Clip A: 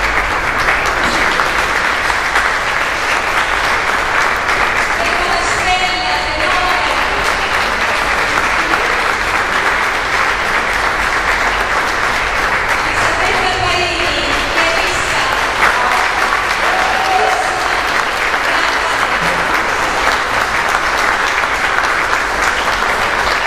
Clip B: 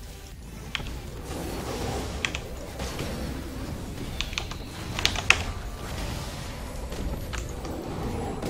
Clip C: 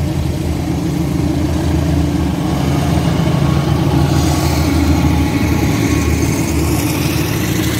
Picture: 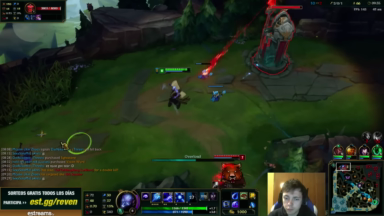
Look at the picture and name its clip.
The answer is B